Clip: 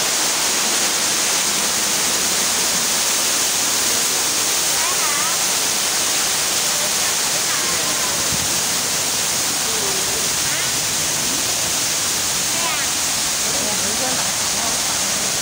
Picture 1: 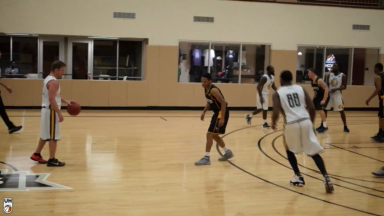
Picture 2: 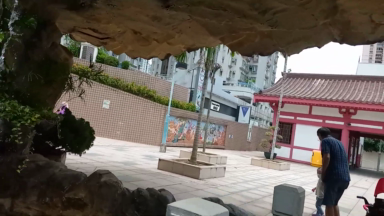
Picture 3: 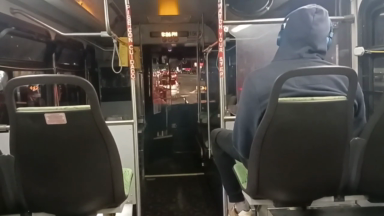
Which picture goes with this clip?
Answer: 2